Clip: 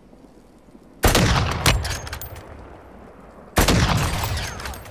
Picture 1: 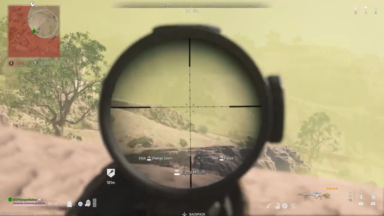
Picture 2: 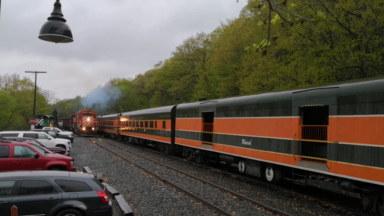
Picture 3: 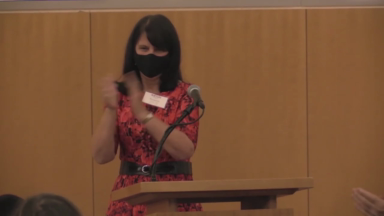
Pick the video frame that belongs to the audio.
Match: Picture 1